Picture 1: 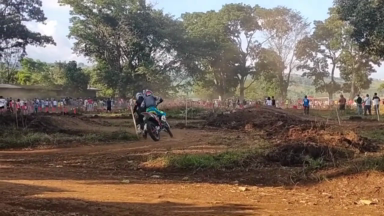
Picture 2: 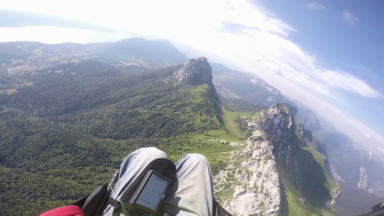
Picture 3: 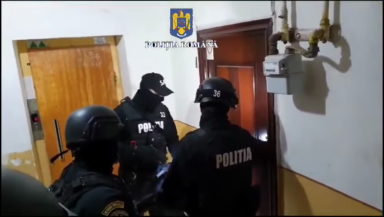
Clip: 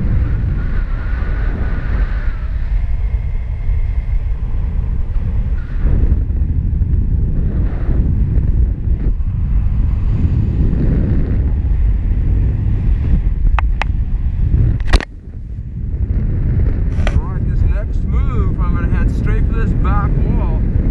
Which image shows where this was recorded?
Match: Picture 2